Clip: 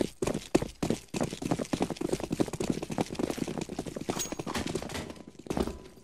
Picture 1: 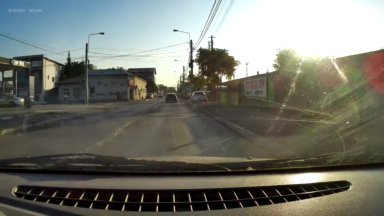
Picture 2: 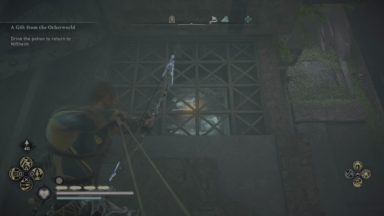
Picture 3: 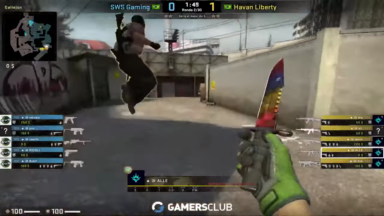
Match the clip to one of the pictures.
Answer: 3